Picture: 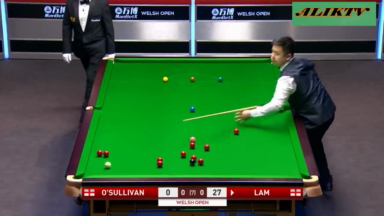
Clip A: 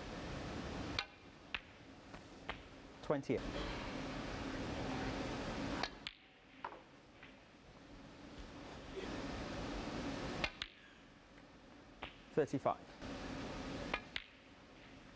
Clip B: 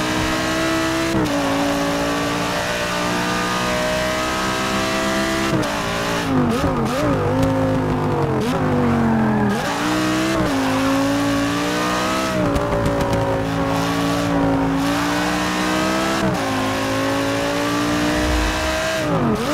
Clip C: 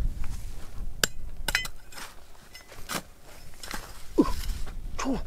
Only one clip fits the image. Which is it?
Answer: A